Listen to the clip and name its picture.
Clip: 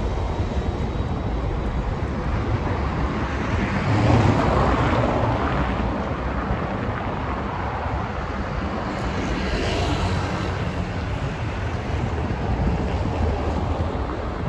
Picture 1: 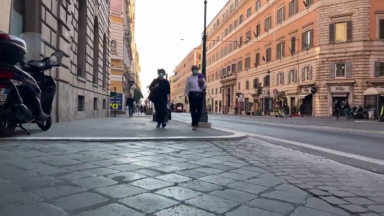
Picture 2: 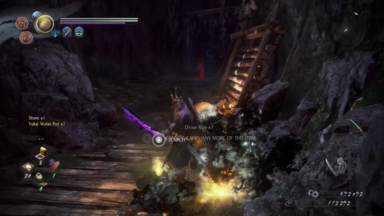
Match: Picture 1